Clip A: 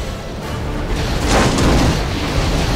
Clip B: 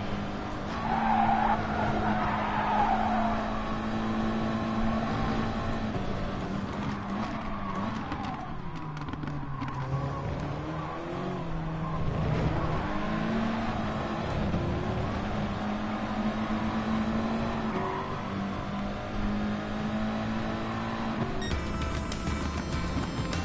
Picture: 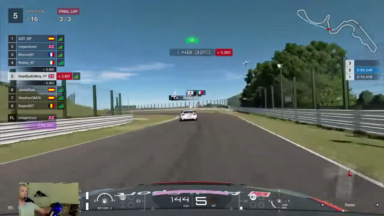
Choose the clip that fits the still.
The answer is B